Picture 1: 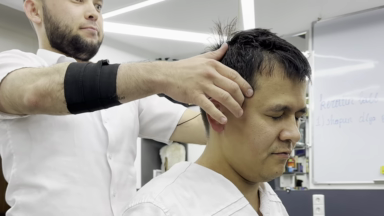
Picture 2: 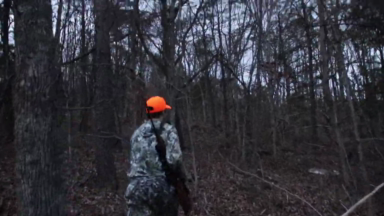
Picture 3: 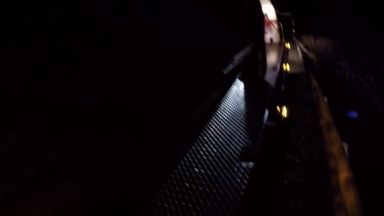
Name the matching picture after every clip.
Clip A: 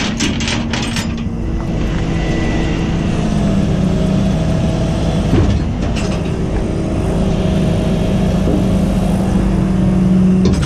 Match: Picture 3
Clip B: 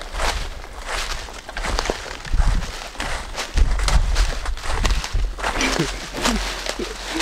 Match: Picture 2